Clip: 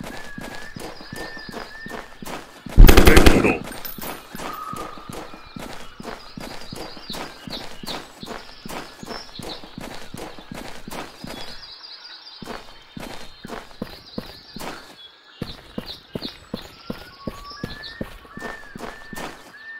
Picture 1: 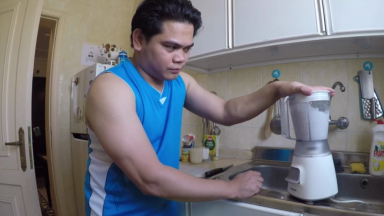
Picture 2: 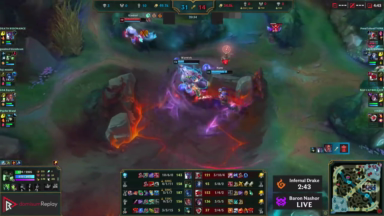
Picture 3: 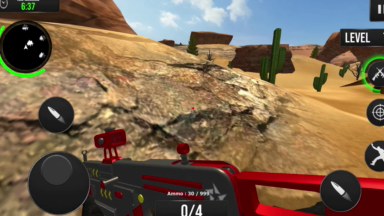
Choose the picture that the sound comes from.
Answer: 3